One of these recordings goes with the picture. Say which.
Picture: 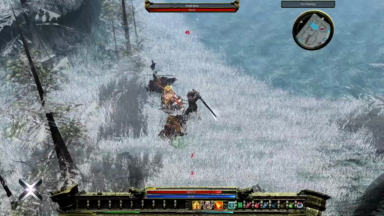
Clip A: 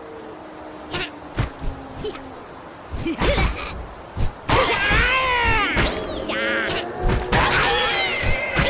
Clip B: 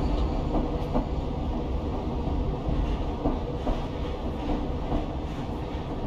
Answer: A